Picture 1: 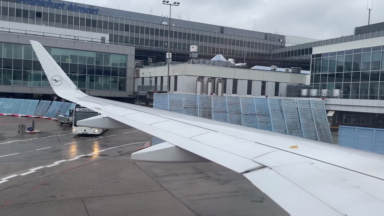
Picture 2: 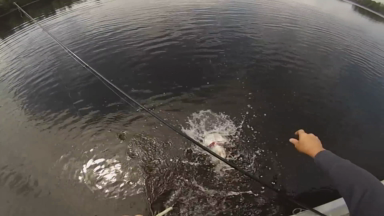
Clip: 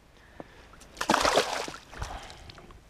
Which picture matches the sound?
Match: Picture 2